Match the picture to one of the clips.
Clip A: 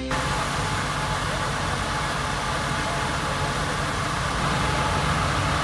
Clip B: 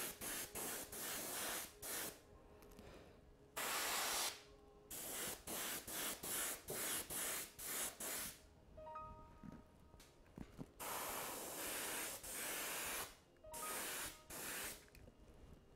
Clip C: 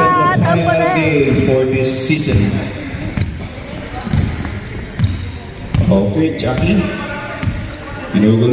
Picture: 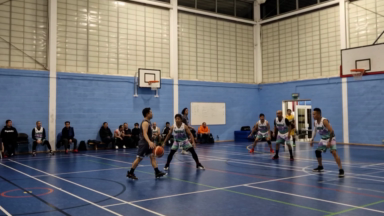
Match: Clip C